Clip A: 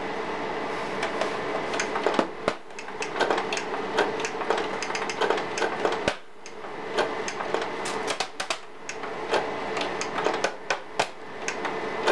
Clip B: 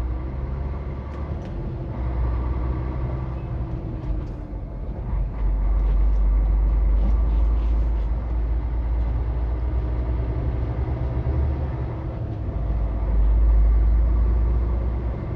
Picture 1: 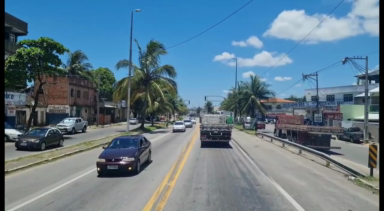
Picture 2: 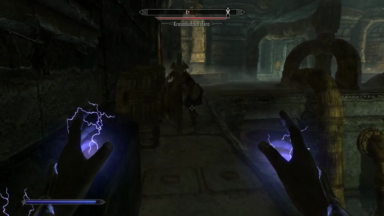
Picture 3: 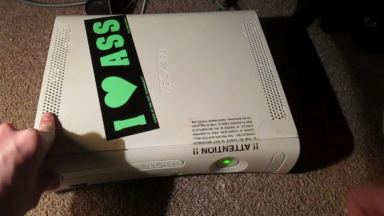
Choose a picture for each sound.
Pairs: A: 3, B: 1